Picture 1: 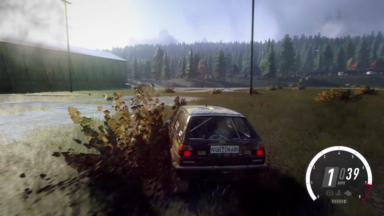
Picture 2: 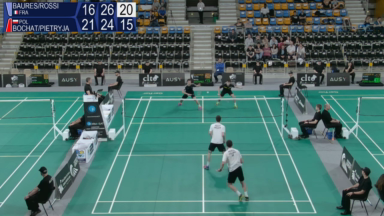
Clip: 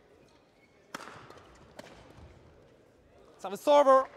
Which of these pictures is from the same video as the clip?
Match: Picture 2